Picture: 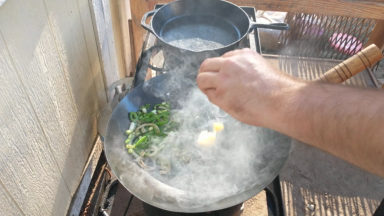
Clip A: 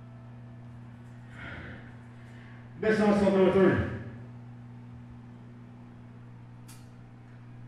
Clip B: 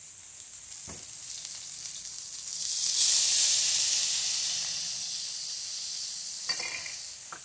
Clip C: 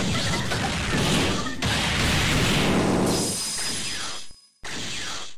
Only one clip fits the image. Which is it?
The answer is B